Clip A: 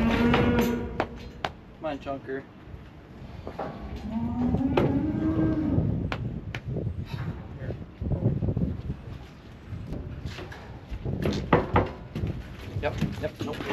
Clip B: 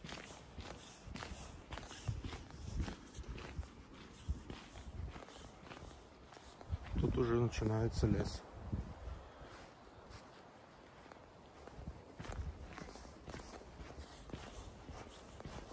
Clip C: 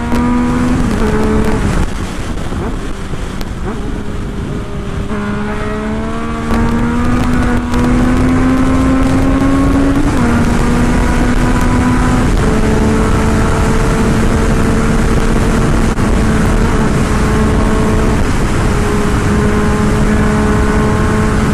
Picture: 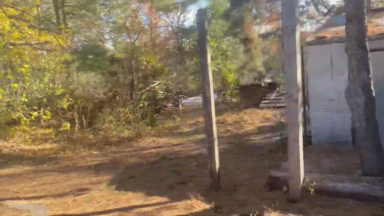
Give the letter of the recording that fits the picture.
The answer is B